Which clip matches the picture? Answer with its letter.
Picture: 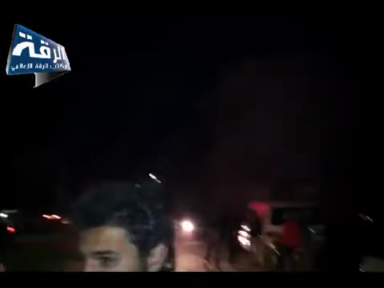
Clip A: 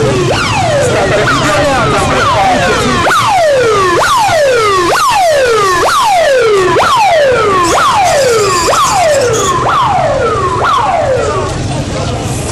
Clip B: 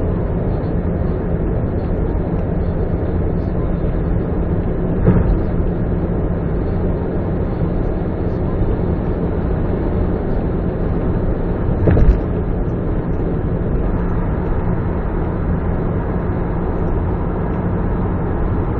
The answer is A